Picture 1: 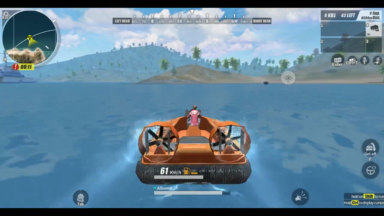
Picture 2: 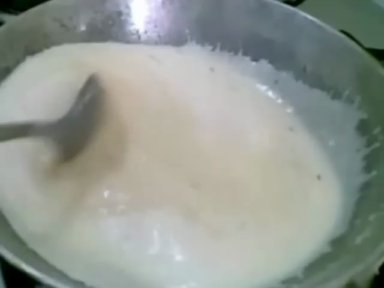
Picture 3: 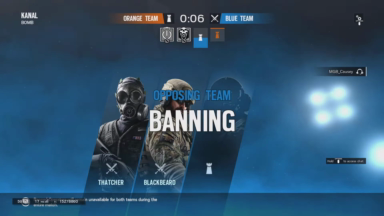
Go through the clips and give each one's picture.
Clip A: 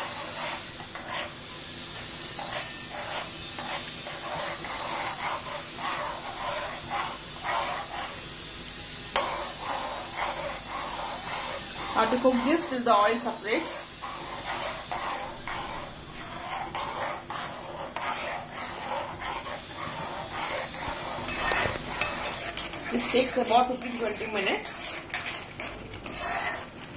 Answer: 2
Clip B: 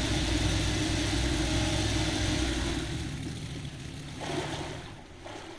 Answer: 1